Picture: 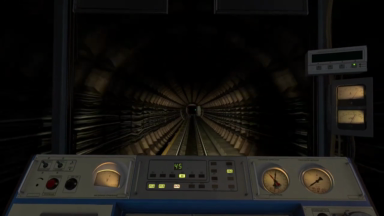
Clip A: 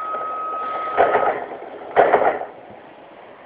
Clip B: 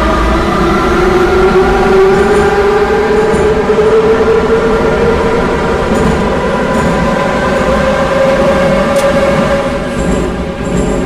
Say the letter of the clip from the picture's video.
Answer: B